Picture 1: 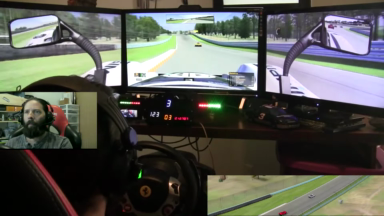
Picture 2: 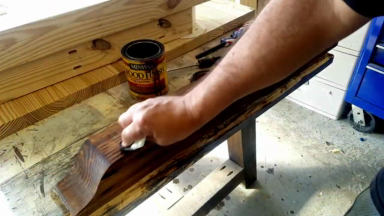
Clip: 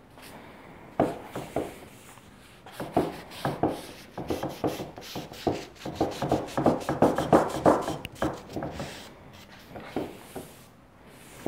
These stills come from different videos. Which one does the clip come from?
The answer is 2